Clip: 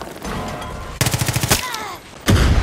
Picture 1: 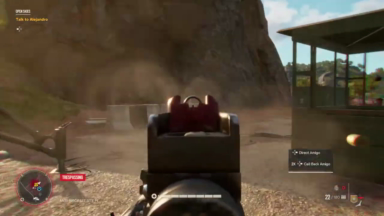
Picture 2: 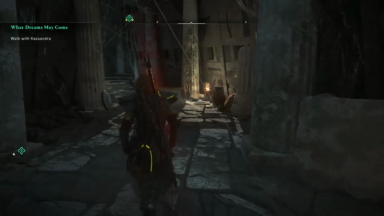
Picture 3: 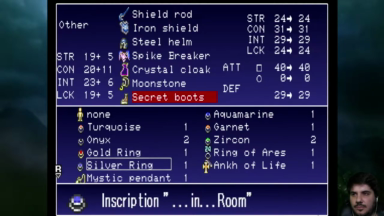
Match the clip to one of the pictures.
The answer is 1